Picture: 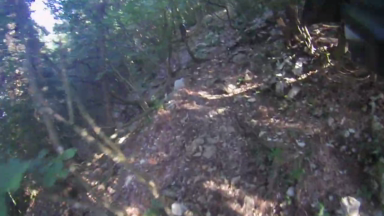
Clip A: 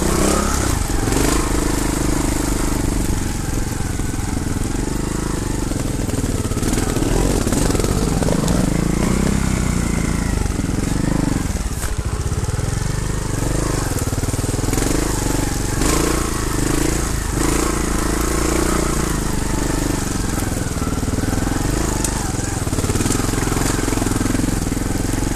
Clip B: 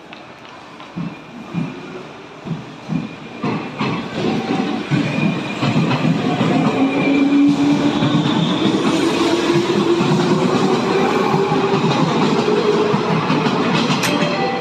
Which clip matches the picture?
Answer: A